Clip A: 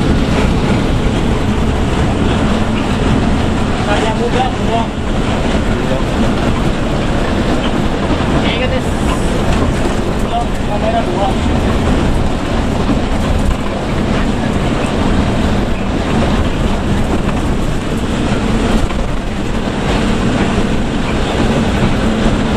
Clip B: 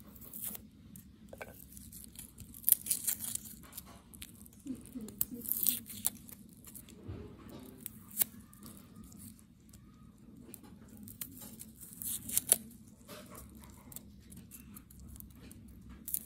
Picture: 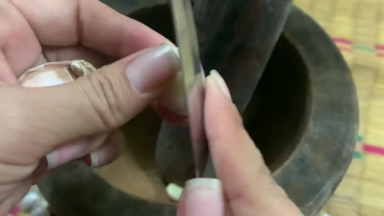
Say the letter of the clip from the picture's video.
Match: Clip B